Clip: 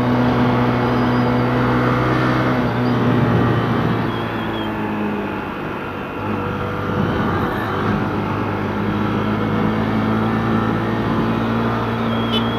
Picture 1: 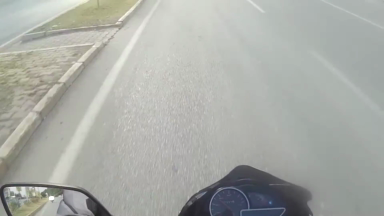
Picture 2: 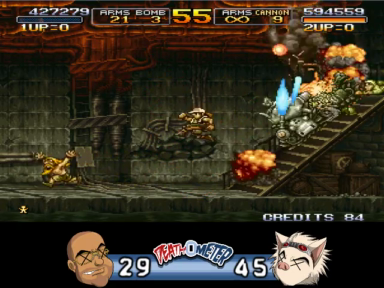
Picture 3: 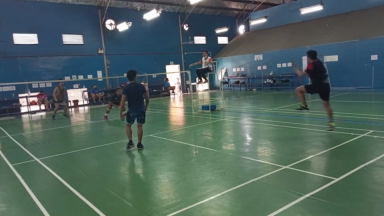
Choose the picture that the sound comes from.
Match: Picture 1